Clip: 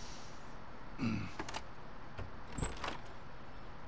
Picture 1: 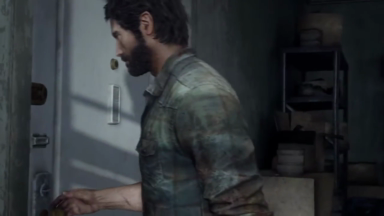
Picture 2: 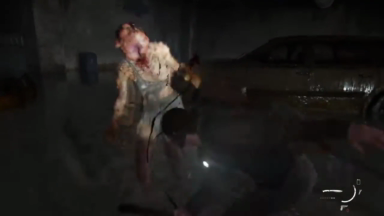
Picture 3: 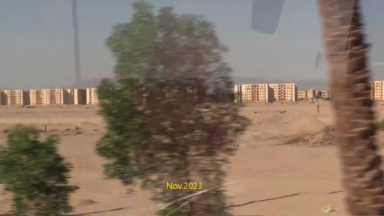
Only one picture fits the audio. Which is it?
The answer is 1